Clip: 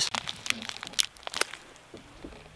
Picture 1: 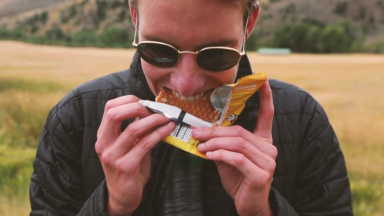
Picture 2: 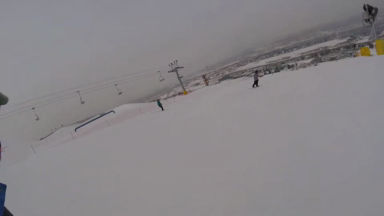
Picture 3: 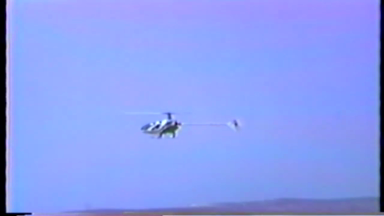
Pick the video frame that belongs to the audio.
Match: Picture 1